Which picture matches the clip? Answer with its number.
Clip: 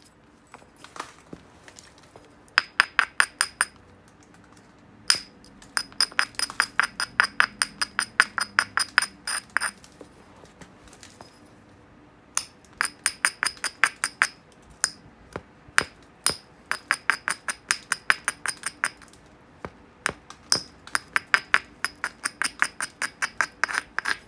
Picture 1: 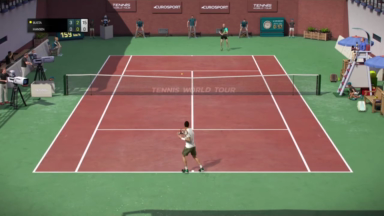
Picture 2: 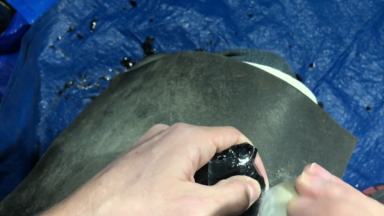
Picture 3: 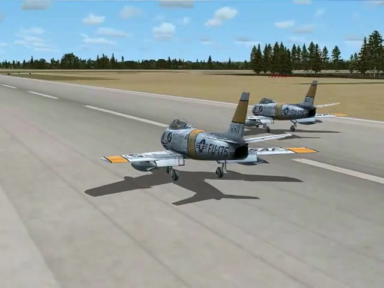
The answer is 2